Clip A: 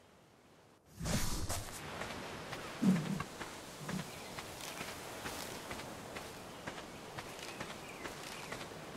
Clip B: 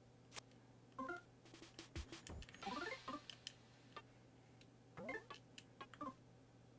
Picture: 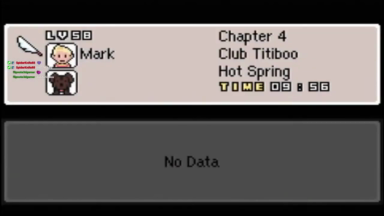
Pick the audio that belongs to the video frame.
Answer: B